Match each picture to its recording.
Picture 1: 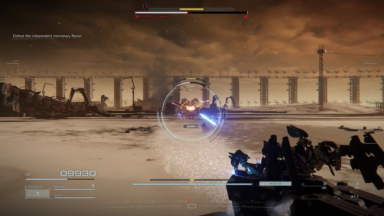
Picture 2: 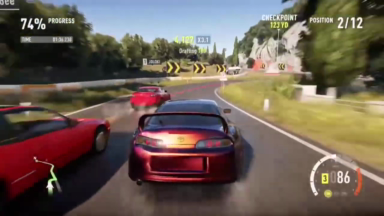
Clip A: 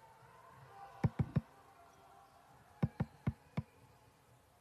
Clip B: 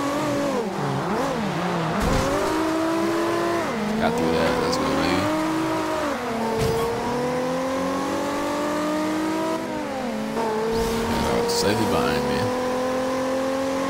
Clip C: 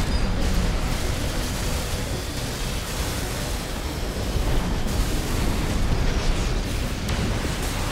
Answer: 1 C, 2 B